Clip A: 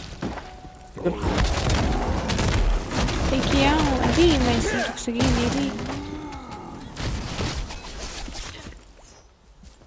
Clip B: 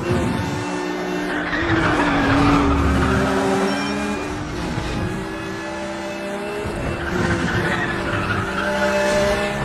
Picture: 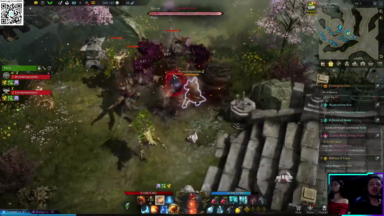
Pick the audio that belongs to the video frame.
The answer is A